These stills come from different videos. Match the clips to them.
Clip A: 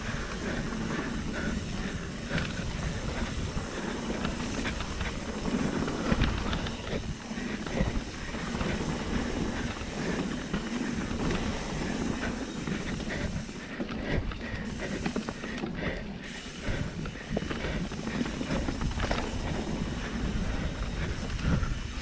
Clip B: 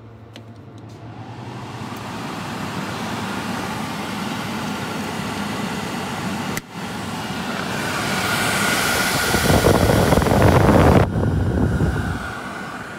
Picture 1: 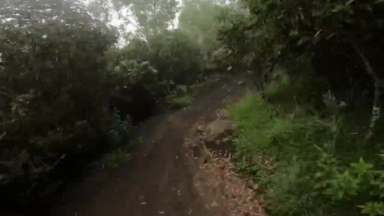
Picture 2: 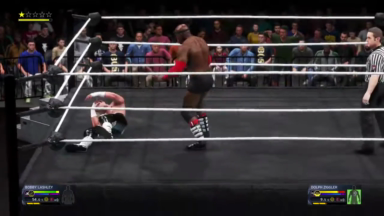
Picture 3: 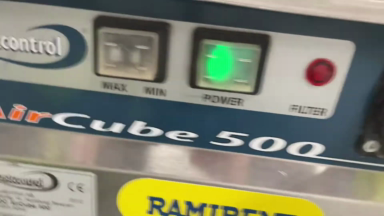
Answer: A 1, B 3